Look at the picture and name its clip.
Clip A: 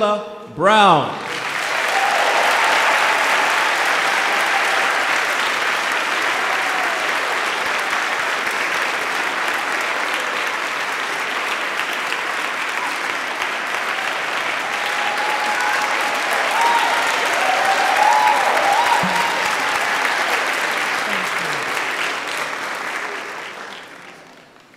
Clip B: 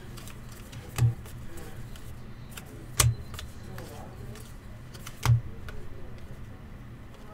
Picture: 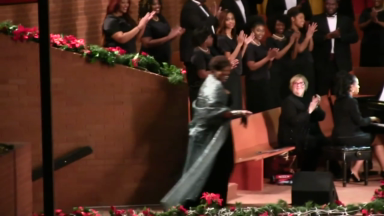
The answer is A